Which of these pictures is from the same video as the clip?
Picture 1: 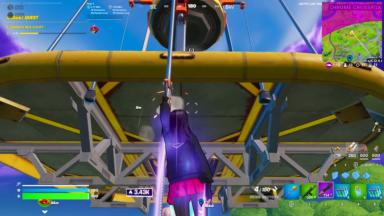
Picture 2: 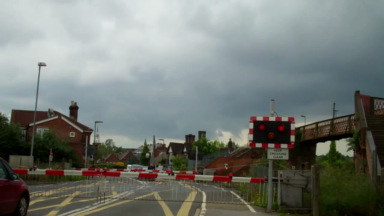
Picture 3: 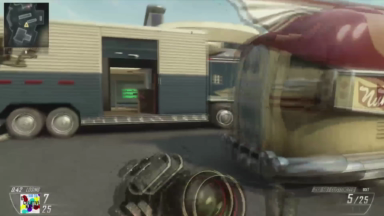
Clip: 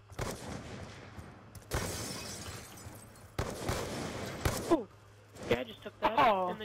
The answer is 3